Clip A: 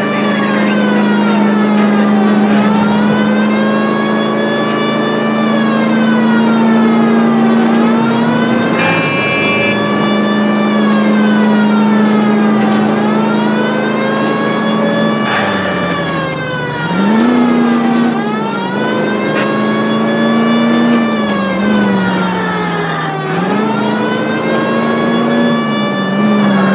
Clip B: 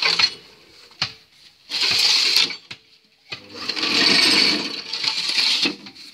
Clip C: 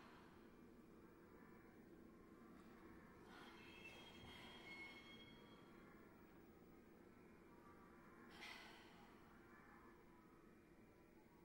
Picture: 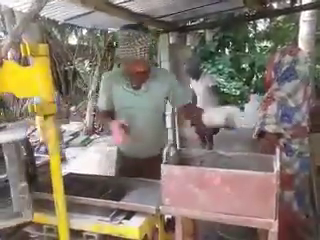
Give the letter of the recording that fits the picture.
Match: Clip B